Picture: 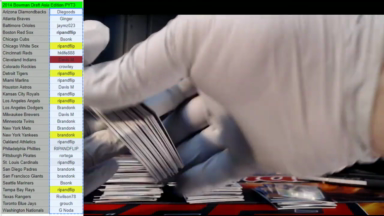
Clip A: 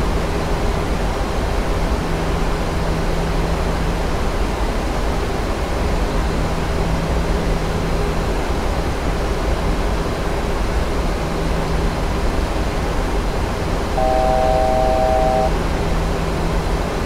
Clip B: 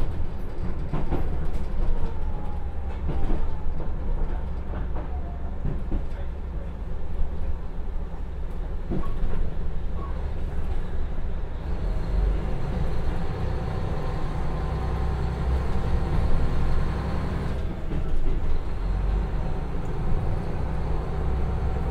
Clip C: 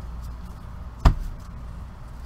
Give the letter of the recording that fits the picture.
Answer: C